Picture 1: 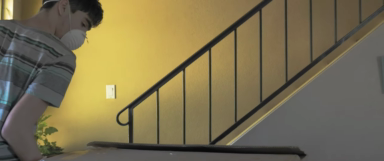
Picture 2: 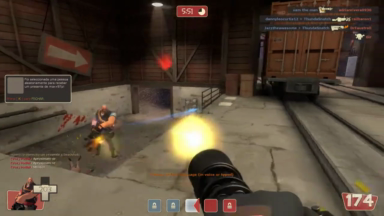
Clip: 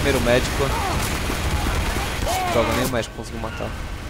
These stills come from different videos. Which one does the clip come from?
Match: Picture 2